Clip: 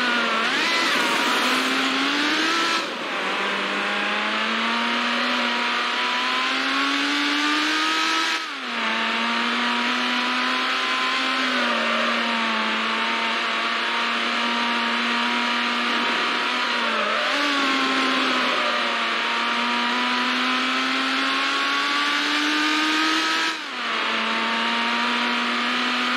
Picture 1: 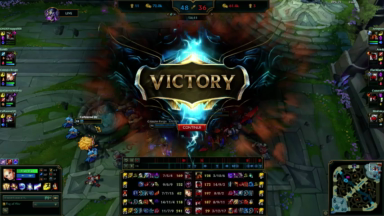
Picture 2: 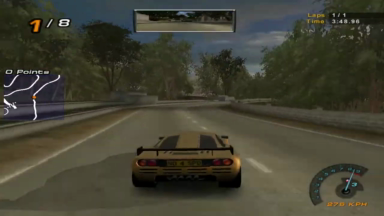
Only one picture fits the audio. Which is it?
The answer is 2